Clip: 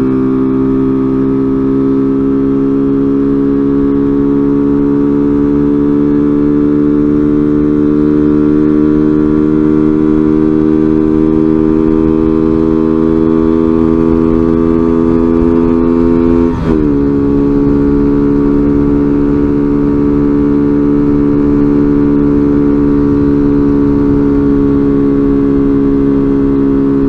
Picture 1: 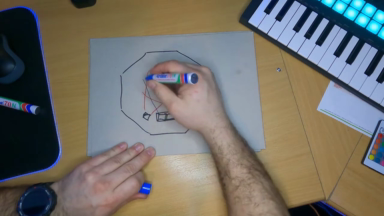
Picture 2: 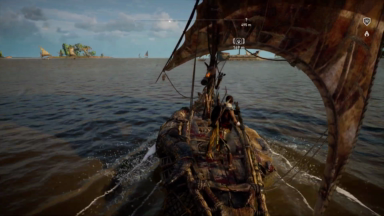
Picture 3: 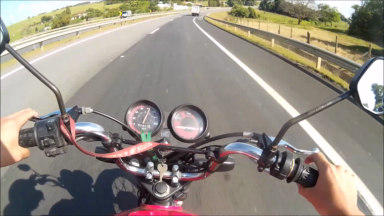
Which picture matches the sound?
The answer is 3